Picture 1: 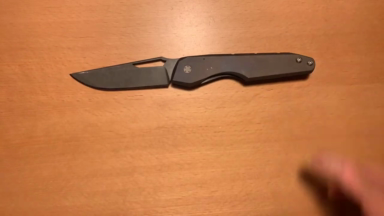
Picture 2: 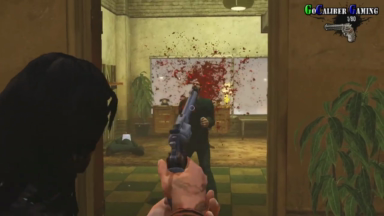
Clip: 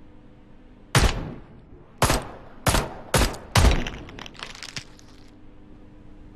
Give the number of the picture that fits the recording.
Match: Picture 2